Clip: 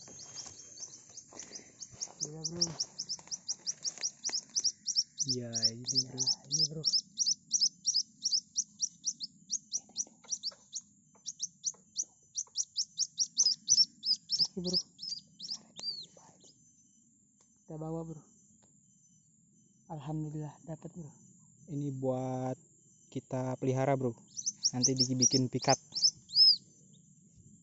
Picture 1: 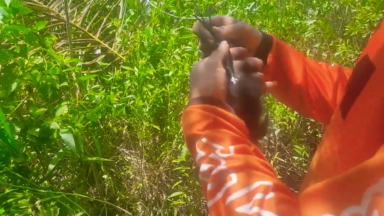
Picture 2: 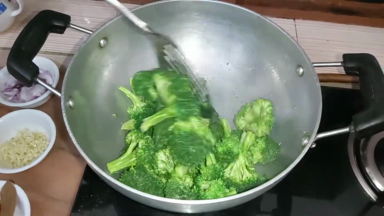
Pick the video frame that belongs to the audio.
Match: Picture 1